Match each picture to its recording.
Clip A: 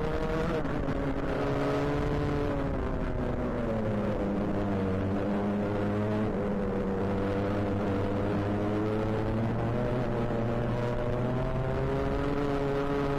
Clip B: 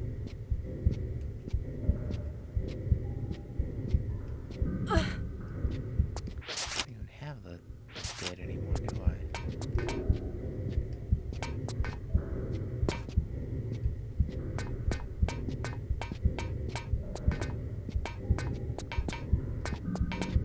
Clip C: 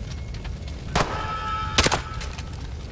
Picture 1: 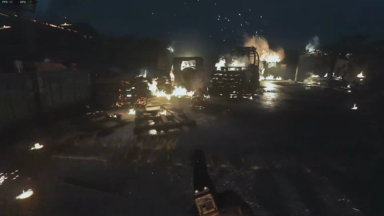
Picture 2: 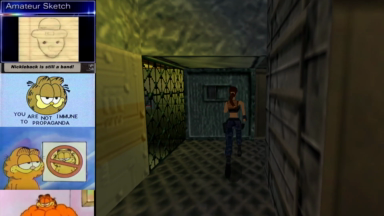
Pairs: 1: C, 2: B